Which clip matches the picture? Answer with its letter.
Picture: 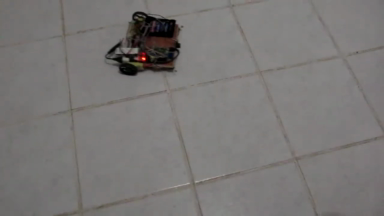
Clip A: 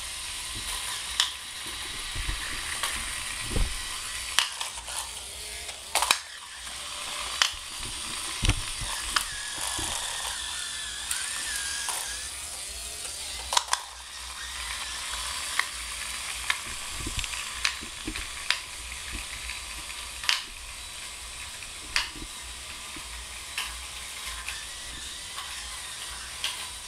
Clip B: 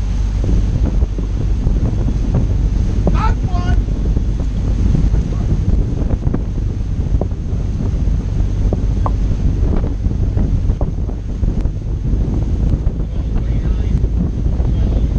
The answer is A